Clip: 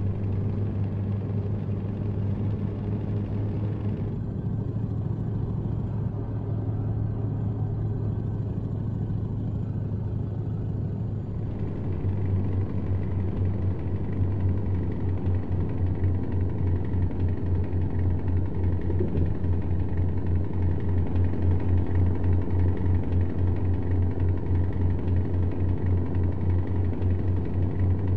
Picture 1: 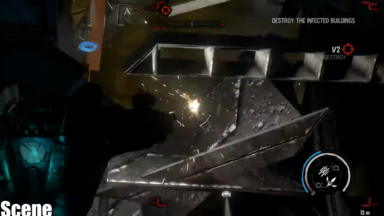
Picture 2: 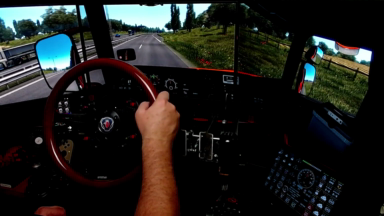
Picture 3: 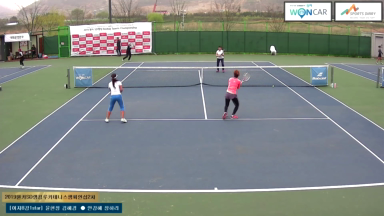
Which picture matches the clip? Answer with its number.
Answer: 2